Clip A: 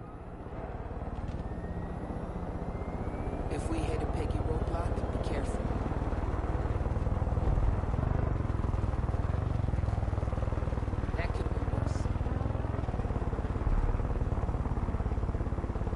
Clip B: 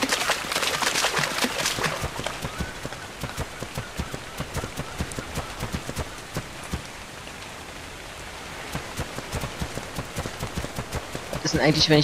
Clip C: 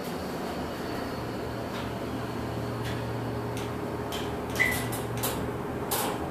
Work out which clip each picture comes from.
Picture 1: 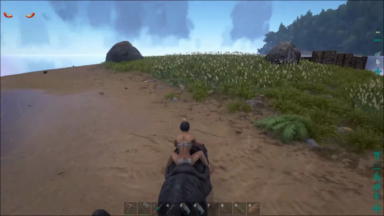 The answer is B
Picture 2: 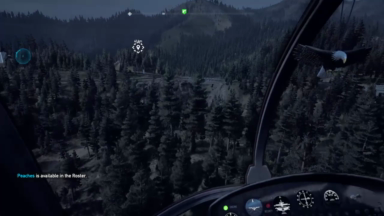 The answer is A